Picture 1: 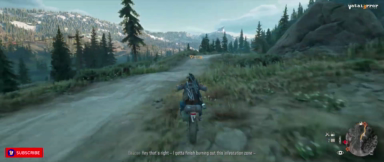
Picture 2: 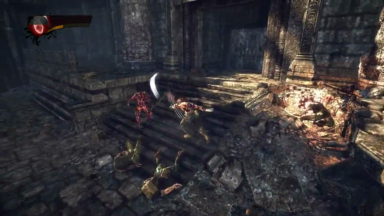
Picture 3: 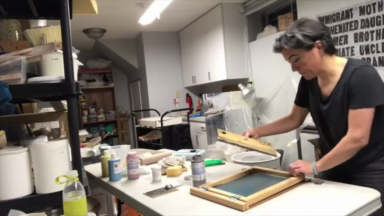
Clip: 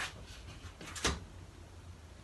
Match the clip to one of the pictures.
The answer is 3